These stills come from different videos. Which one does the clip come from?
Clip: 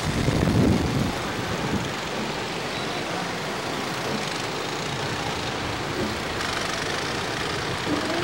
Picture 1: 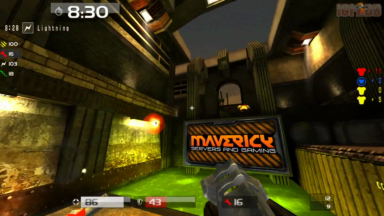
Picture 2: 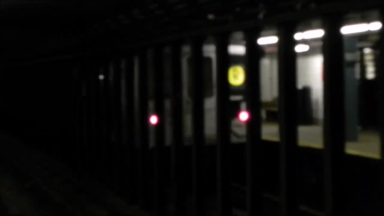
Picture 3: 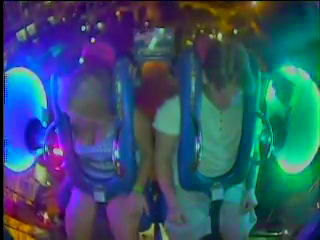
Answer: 3